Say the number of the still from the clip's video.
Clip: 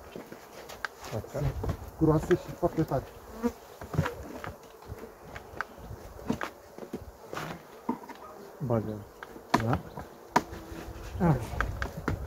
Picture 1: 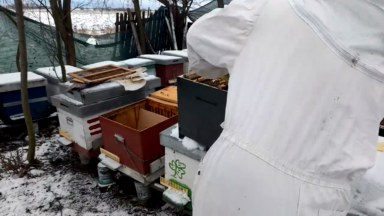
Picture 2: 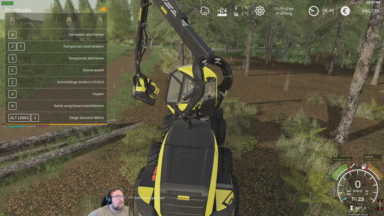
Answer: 1